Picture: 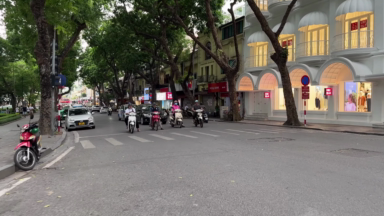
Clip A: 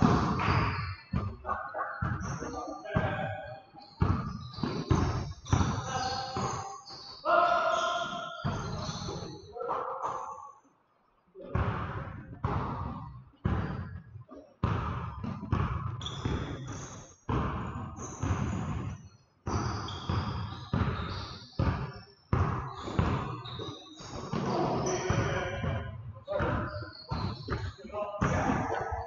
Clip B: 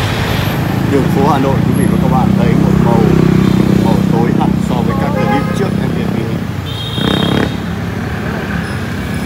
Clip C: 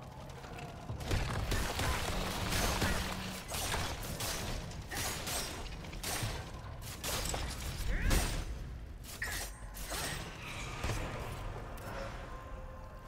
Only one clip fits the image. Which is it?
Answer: B